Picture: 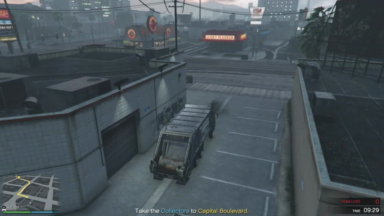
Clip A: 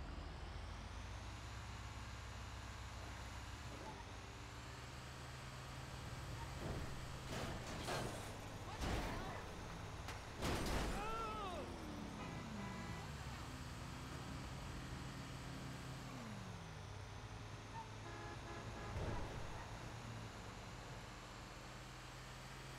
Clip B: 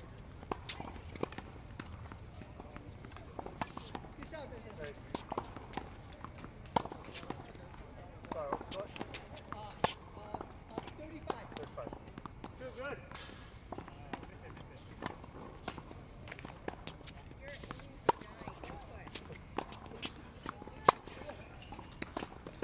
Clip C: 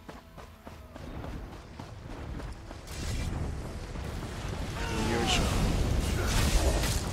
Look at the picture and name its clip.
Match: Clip A